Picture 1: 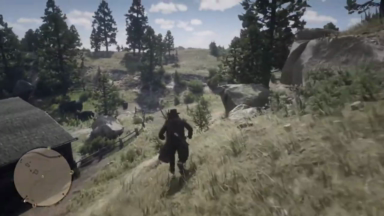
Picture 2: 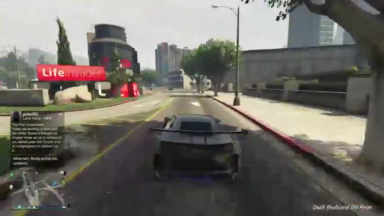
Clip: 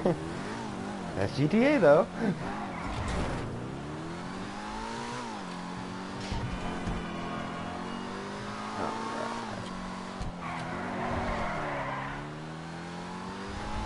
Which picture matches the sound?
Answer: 2